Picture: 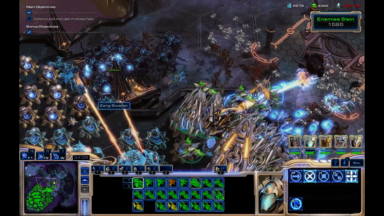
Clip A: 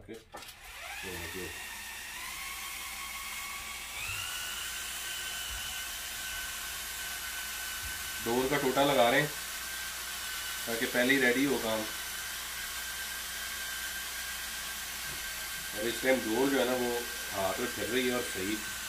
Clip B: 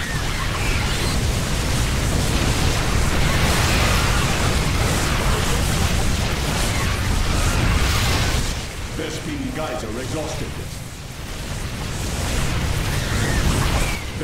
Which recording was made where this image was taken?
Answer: B